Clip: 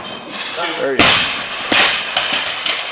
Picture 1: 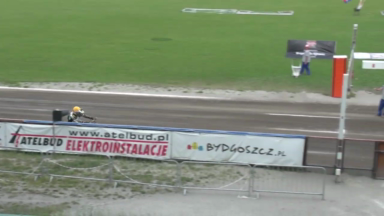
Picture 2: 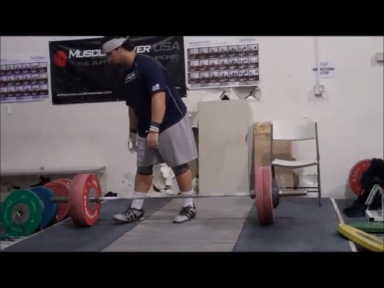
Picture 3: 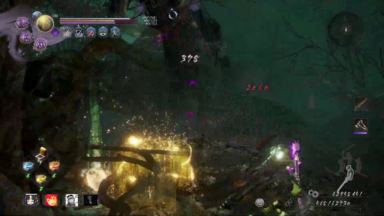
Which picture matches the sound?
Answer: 2